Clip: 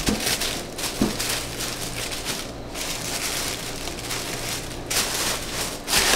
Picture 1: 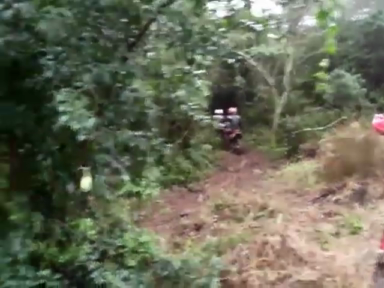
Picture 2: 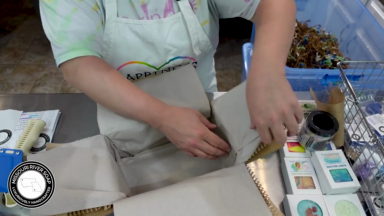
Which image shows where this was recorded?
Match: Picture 2